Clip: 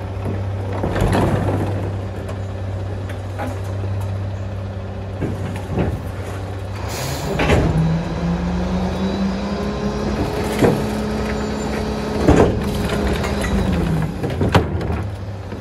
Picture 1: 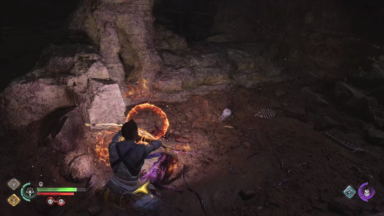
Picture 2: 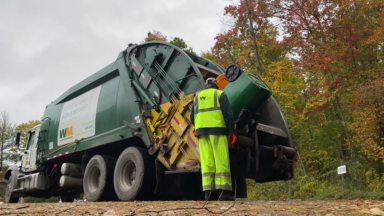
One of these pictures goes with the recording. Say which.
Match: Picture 2